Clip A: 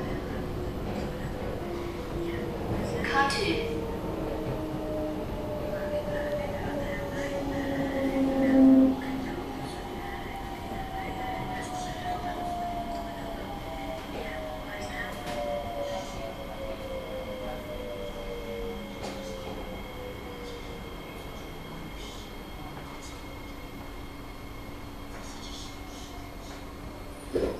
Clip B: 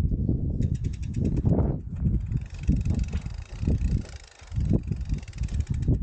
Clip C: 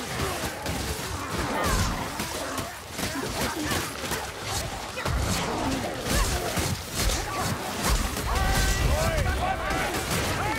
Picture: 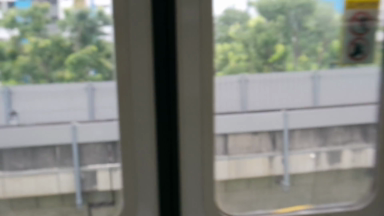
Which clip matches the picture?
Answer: A